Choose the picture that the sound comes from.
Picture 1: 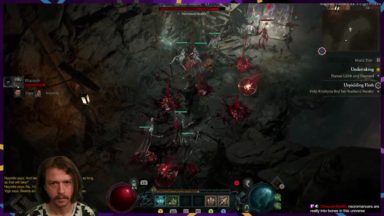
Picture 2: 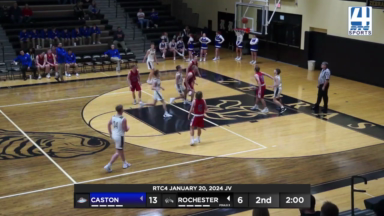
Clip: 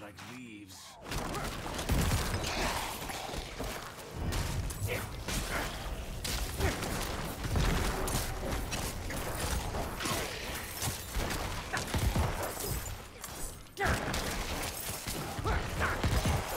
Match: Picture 1